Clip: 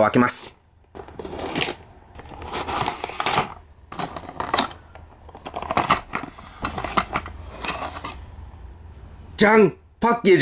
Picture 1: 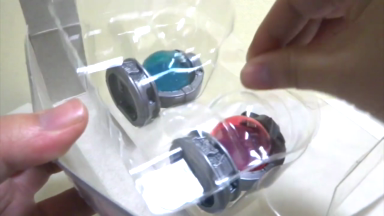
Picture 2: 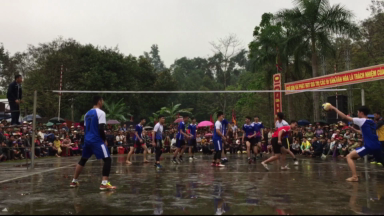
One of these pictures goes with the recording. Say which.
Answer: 1